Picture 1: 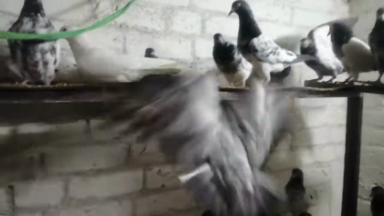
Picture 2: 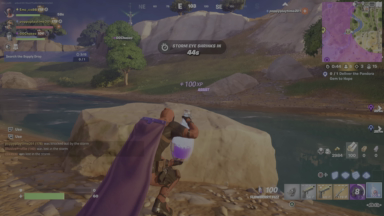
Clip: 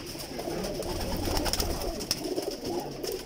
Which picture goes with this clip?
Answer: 1